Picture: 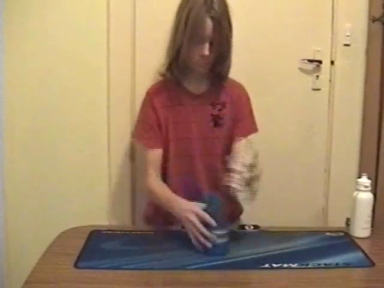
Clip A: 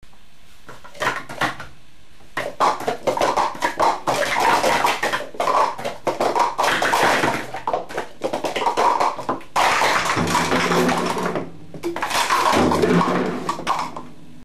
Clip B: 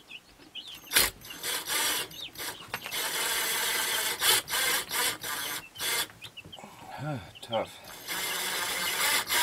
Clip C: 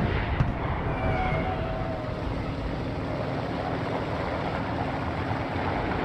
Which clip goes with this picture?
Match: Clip A